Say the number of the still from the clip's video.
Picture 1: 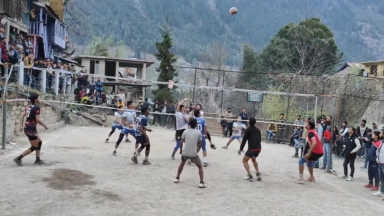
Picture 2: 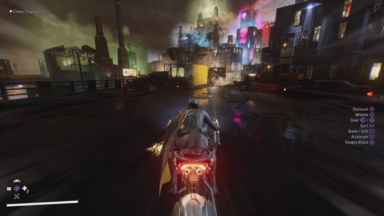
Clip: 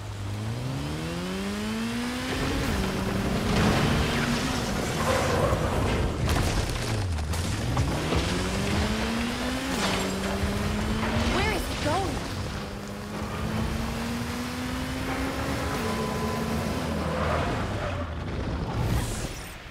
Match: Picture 2